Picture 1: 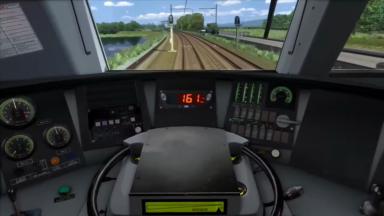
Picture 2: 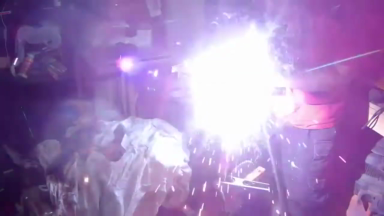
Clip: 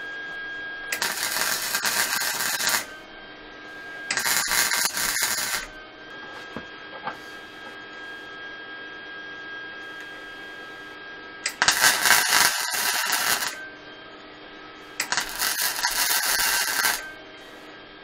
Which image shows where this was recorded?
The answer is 2